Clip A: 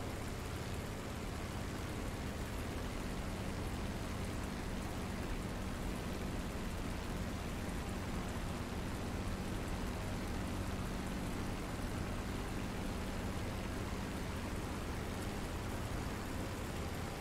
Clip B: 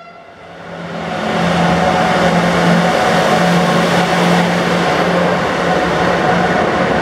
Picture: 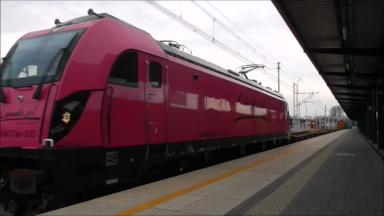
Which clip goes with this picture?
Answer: B